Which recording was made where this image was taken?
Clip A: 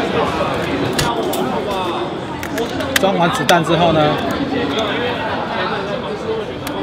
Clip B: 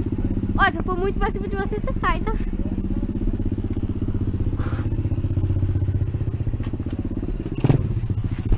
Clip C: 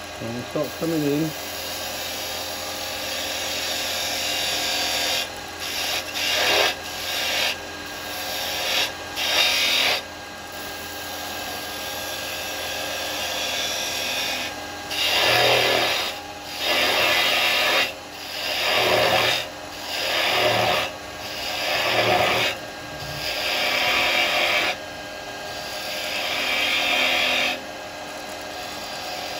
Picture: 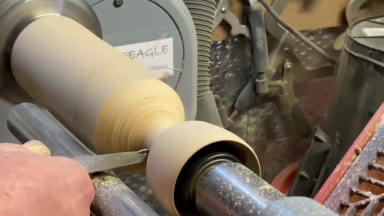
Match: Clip C